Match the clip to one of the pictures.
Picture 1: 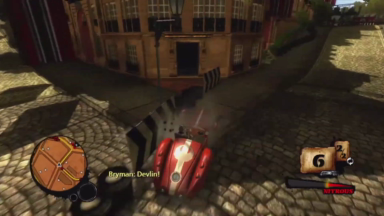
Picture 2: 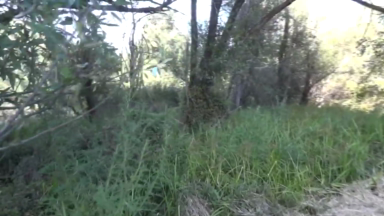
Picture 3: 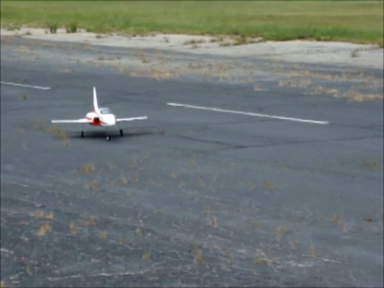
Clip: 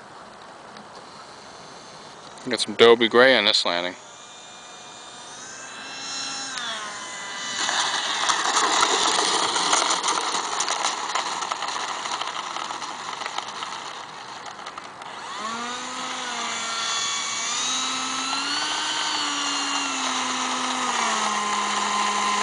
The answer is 3